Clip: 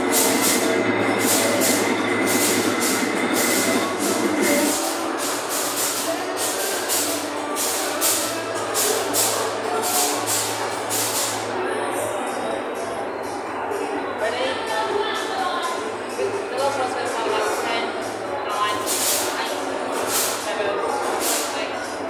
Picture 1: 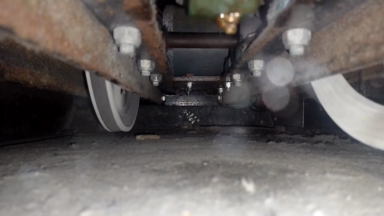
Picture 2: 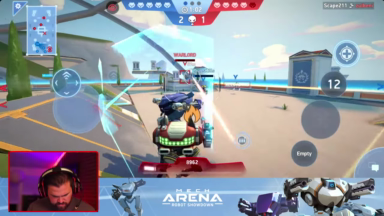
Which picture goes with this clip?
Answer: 1